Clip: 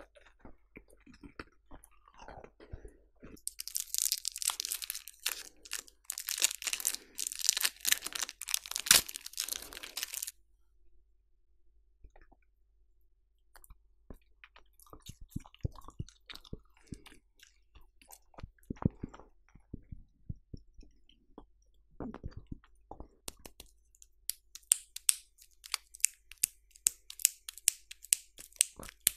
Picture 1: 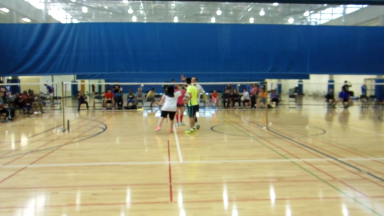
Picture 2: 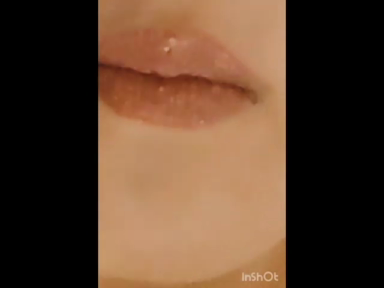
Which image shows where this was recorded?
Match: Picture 2